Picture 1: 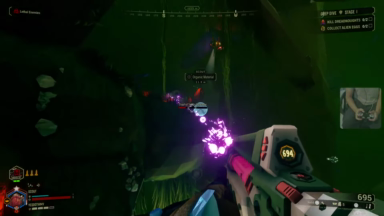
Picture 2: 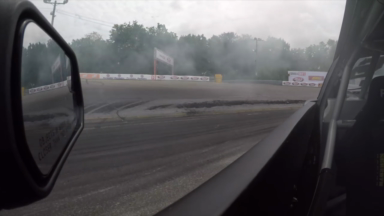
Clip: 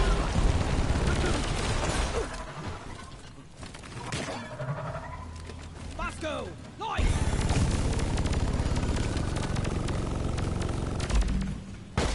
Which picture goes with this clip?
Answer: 1